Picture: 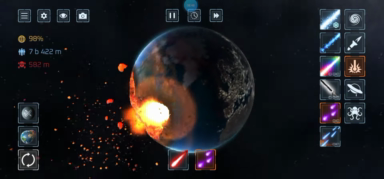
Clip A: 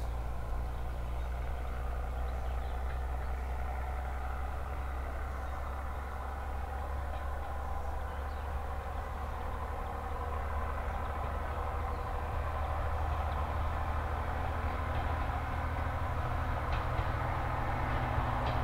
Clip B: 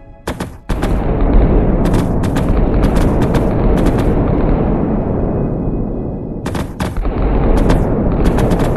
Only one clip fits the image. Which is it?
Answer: B